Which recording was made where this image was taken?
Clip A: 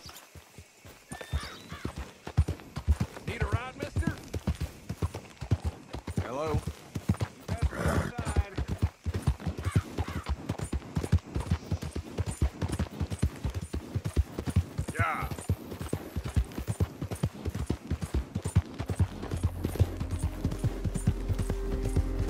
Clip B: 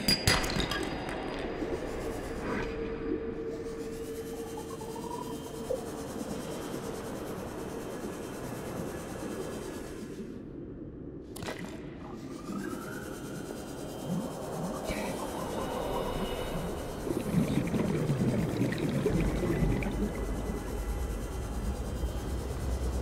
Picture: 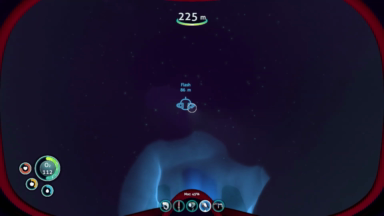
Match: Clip B